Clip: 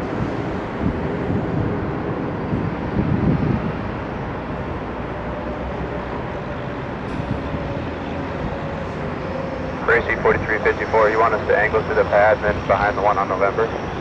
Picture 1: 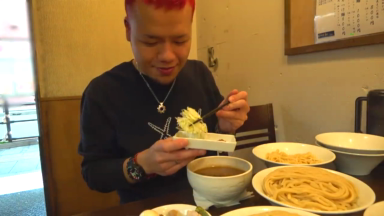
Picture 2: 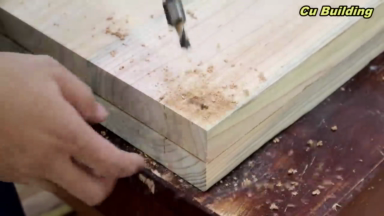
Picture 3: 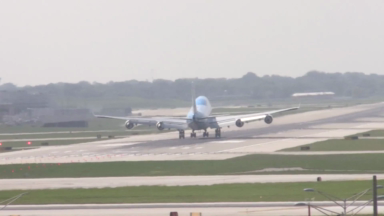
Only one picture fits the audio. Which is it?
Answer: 3